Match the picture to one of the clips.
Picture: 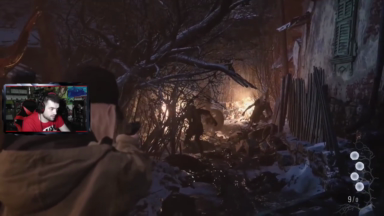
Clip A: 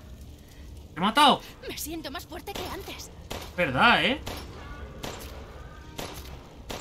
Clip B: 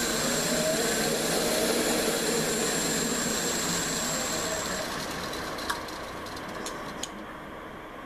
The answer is A